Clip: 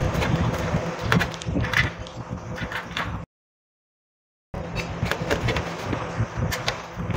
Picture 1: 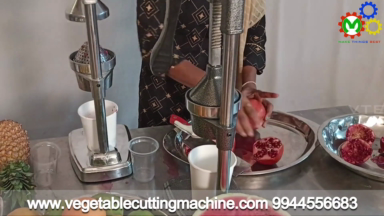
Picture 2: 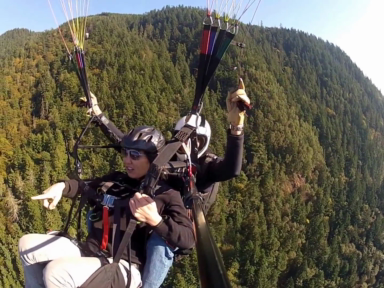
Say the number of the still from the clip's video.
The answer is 1